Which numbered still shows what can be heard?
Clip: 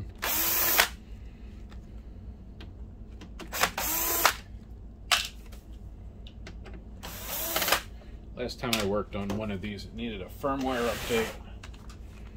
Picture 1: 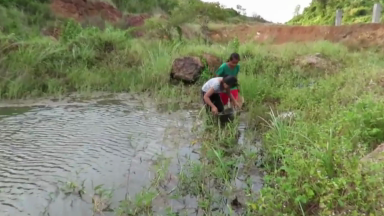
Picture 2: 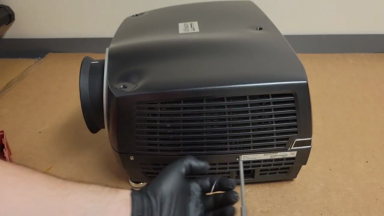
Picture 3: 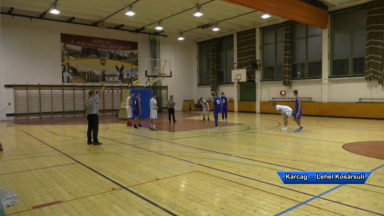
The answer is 2